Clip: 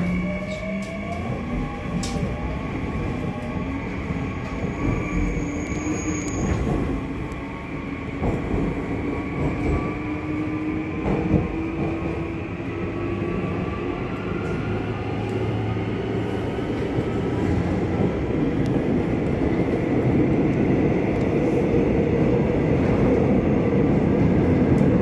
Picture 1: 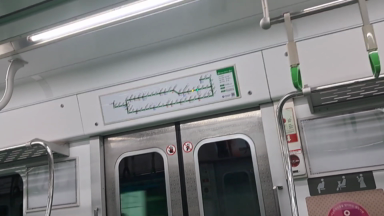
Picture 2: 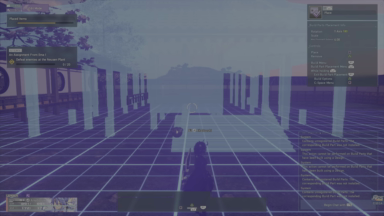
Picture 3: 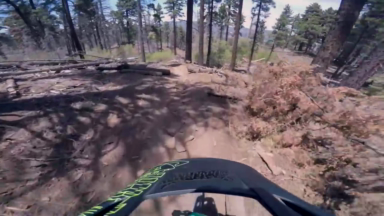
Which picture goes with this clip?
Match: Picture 1